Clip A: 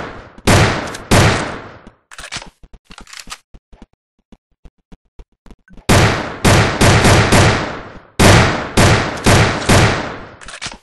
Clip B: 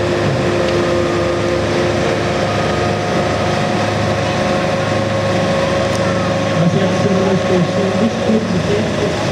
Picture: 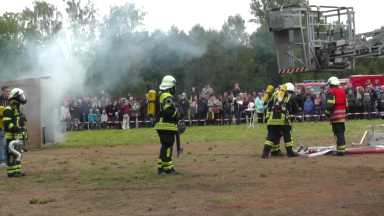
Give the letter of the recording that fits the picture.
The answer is B